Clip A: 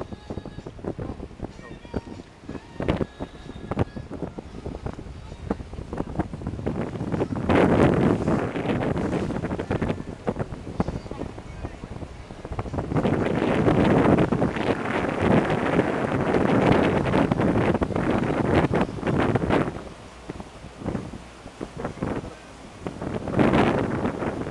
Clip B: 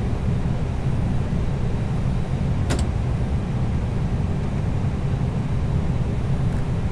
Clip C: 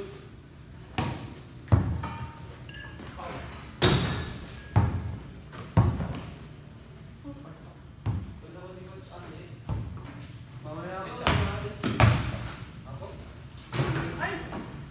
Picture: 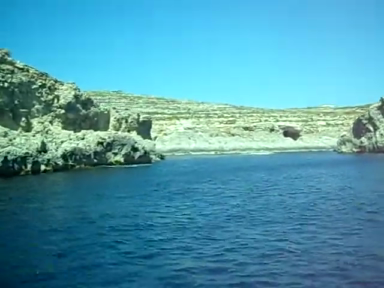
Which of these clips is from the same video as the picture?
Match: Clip A